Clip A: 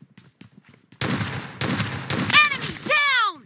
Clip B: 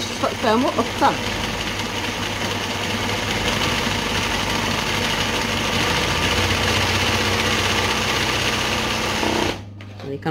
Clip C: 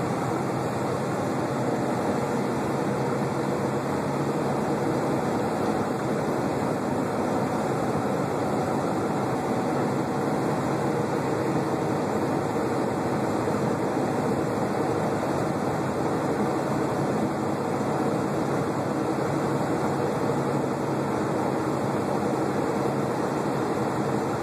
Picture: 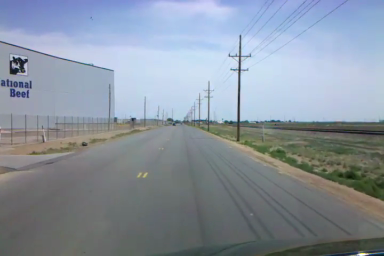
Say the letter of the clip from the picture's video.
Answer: C